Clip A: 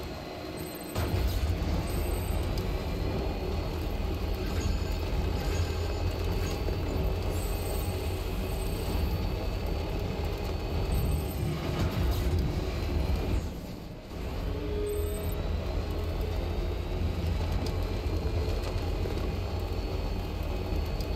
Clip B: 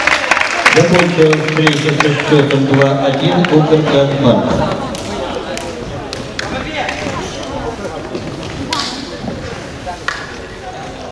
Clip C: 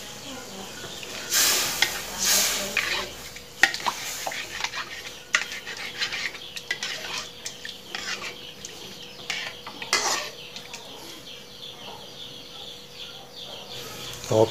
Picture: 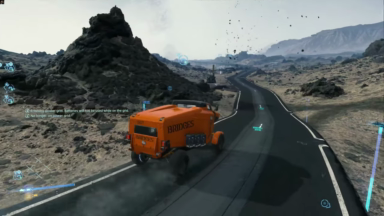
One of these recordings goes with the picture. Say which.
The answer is A